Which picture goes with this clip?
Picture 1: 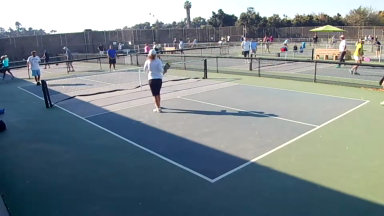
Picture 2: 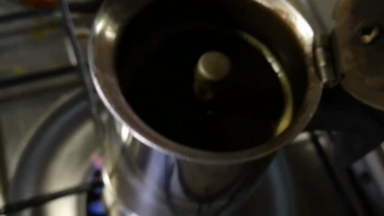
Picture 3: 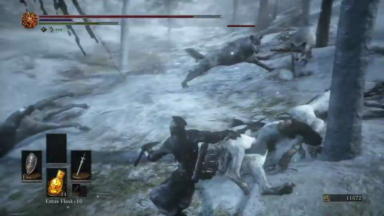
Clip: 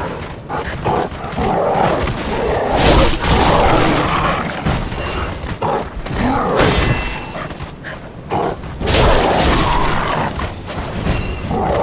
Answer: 3